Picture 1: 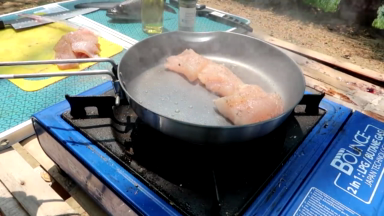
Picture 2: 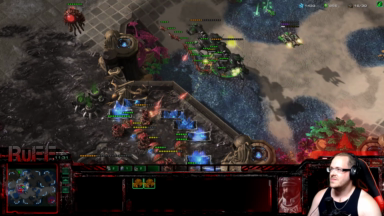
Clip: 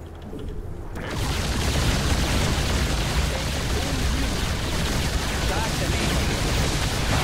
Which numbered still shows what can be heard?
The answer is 2